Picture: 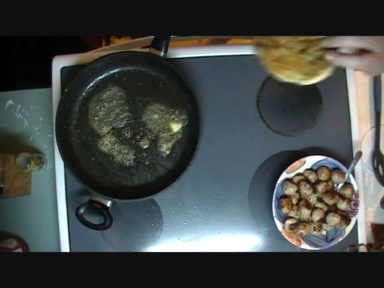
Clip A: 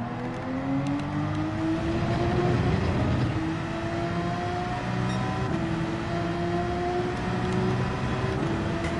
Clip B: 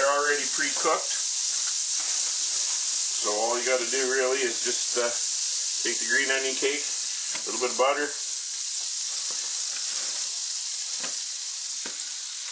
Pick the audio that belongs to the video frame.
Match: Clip B